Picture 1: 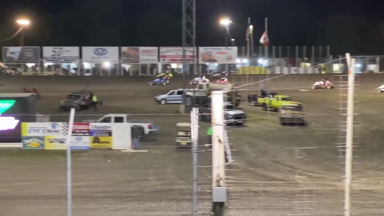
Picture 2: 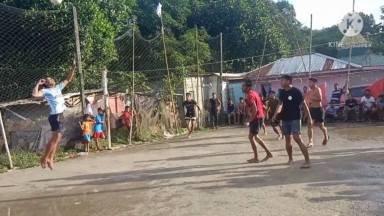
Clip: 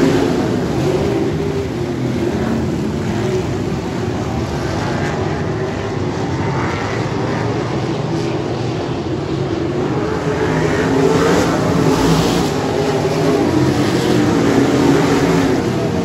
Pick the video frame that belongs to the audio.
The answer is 1